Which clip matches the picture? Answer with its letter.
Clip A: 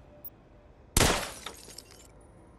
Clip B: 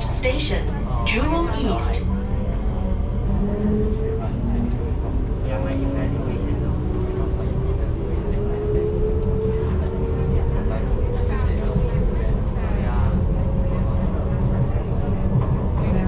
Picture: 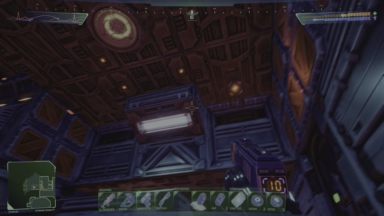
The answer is A